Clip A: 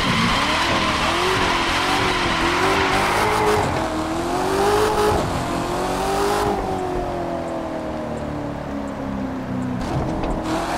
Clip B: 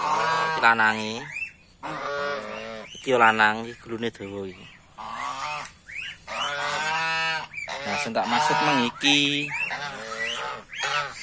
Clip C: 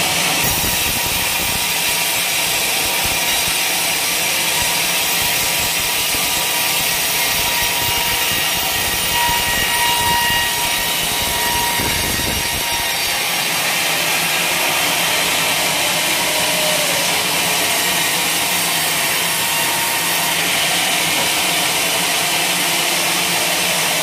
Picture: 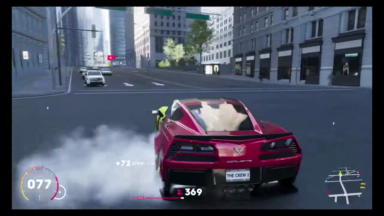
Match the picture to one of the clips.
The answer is A